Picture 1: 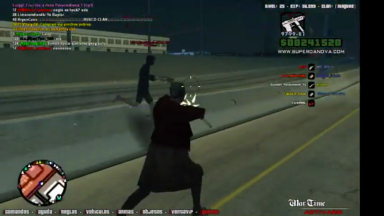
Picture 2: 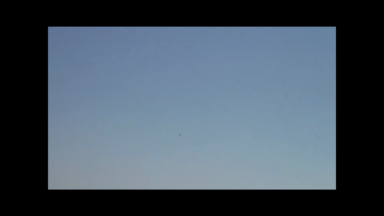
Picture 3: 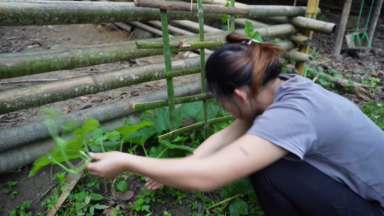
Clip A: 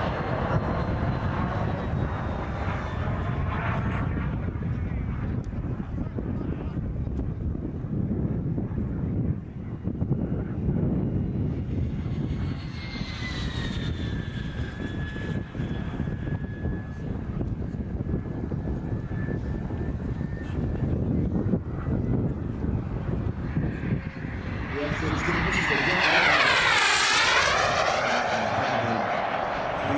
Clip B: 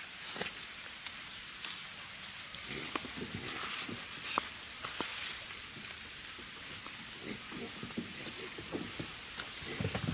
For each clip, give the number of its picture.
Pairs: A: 2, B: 3